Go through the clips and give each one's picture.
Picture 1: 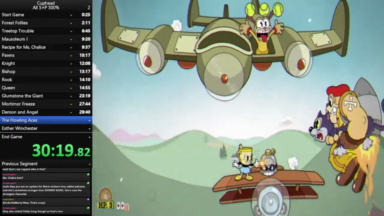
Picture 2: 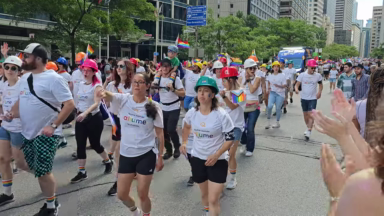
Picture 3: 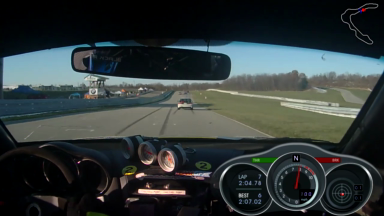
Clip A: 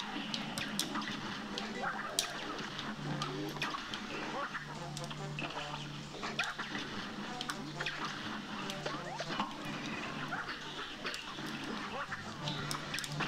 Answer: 1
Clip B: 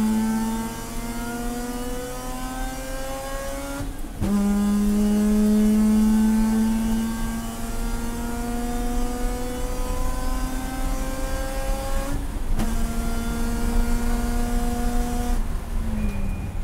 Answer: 3